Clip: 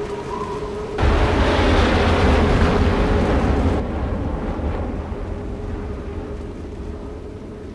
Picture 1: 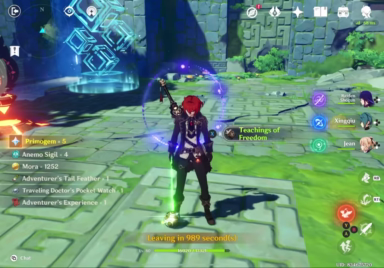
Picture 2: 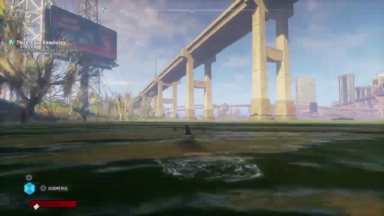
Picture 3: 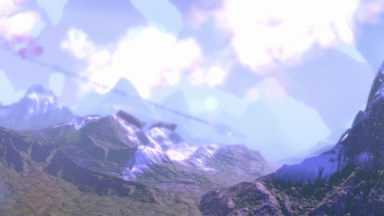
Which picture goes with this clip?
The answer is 3